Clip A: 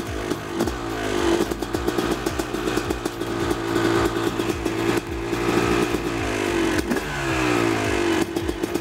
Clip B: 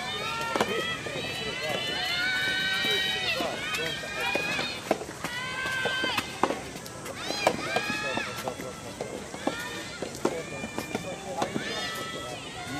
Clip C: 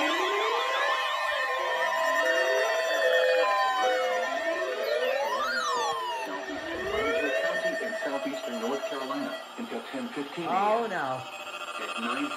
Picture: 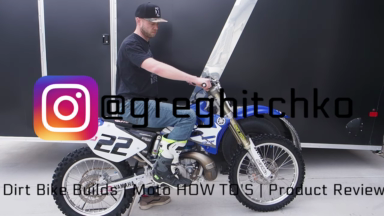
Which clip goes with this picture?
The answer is A